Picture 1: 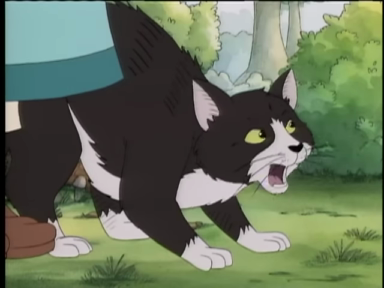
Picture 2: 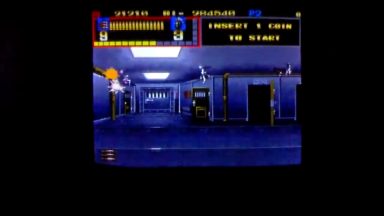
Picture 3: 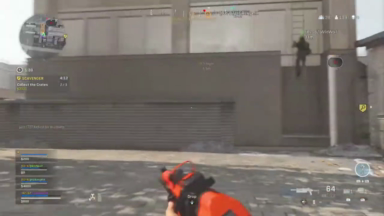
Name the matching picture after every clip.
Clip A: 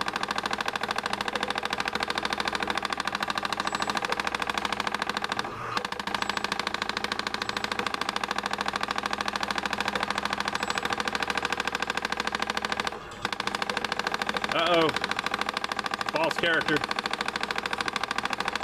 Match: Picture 2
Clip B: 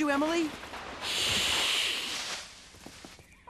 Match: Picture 1